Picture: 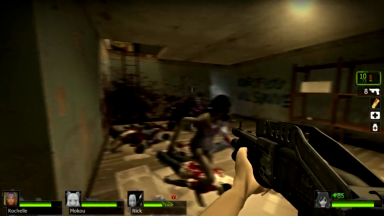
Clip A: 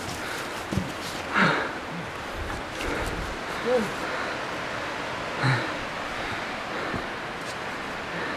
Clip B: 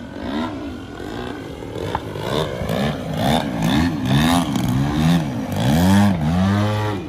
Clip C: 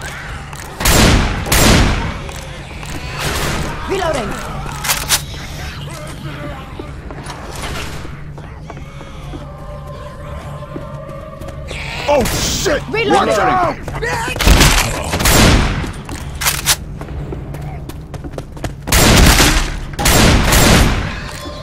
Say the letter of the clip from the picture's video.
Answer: C